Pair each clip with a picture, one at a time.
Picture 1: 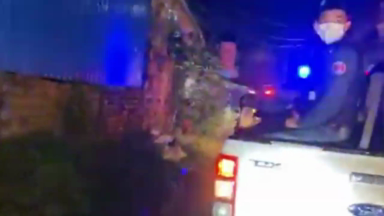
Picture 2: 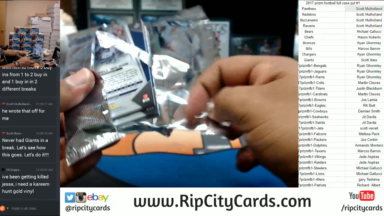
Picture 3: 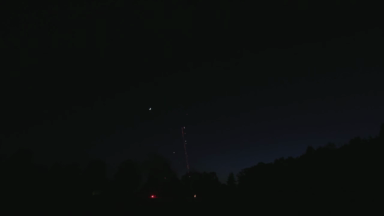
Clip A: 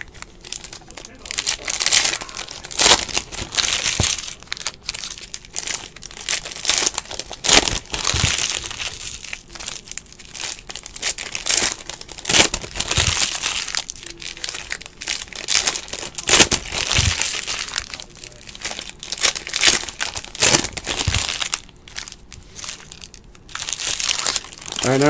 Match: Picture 2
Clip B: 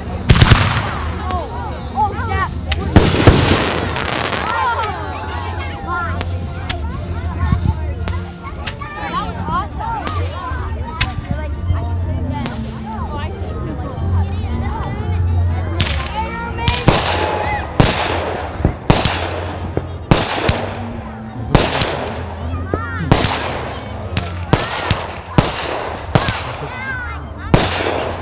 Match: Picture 3